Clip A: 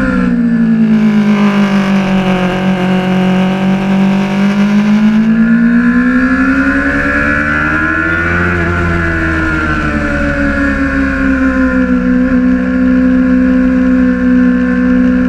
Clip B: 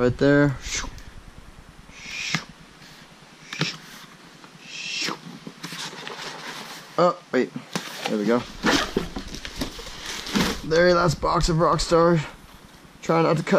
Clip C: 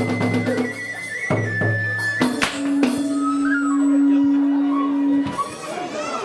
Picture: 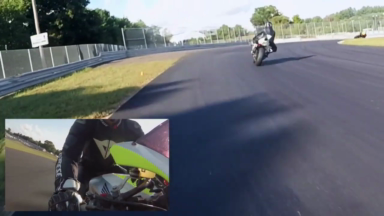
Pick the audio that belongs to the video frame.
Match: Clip A